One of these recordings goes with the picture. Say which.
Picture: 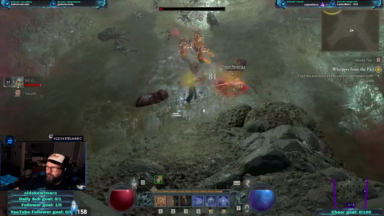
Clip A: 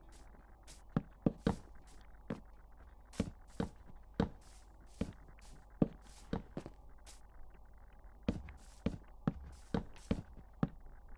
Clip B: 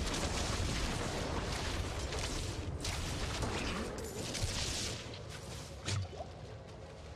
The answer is B